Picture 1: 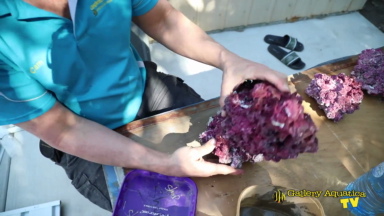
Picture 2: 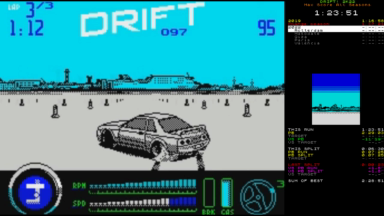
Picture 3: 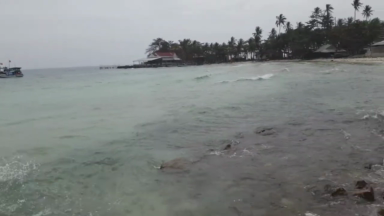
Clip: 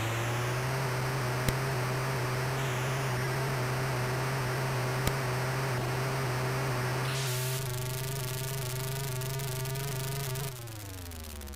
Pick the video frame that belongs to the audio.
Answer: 2